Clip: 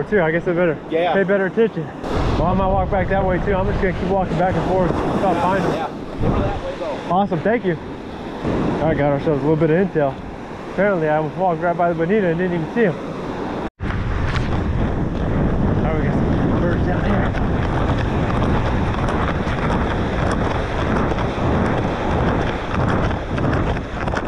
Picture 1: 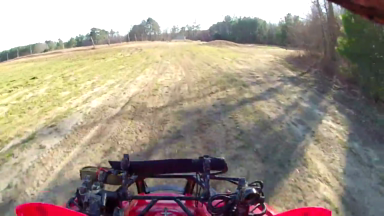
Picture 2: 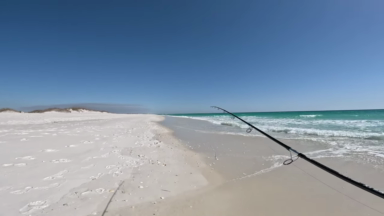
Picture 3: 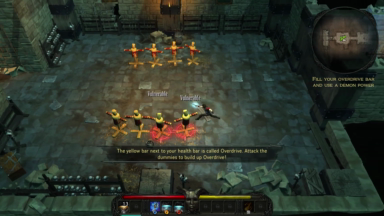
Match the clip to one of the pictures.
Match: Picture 2